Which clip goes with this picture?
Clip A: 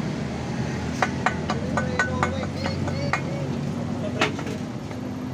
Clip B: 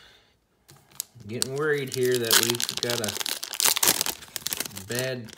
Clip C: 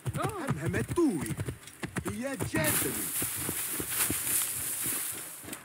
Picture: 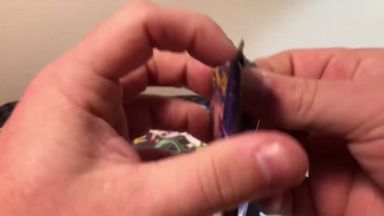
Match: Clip B